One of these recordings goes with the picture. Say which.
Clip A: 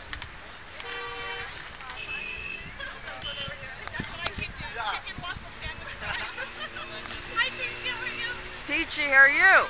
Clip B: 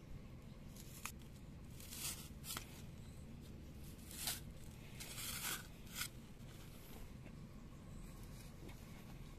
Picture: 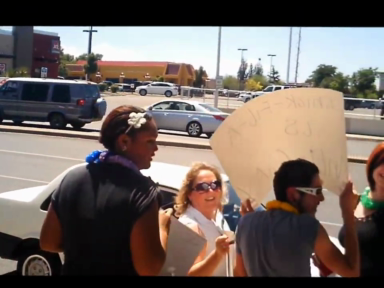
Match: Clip A